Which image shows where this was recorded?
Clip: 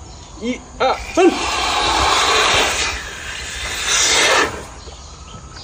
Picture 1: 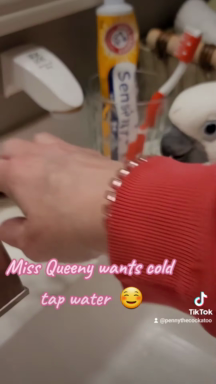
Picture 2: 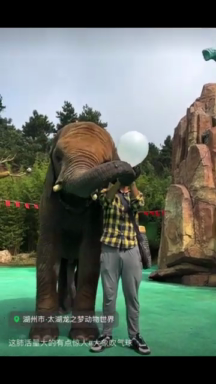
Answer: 2